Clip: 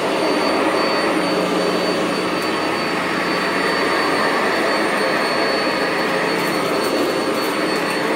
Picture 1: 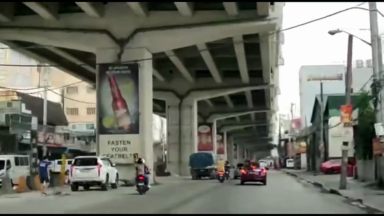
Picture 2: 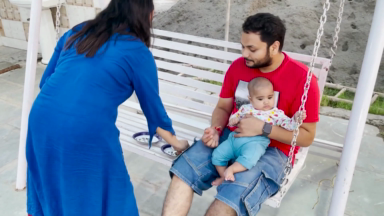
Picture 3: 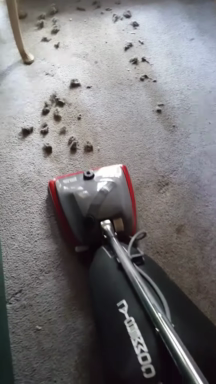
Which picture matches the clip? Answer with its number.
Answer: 3